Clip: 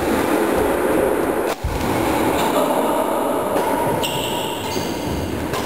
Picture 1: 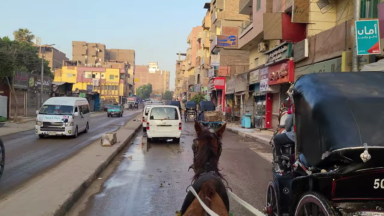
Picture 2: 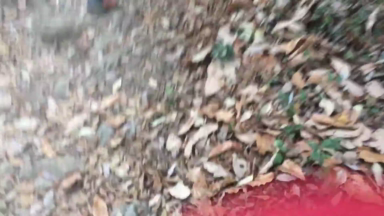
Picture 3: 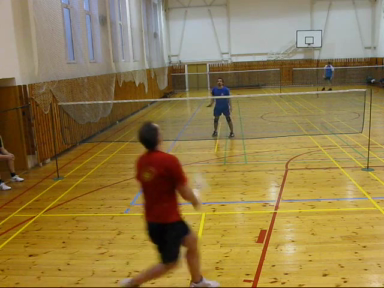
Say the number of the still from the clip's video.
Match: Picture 3